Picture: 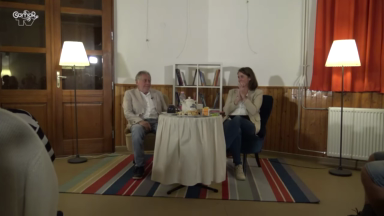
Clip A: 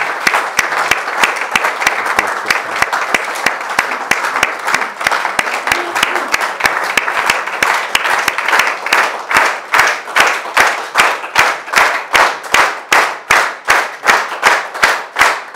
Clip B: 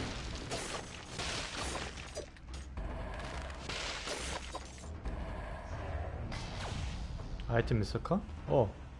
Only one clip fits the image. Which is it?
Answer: A